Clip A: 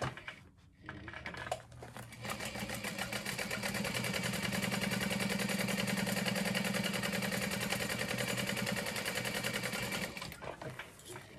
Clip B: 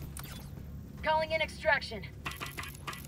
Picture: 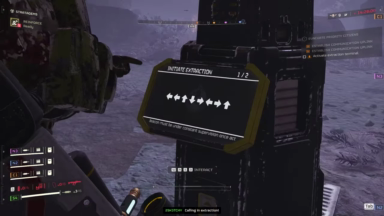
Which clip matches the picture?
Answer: B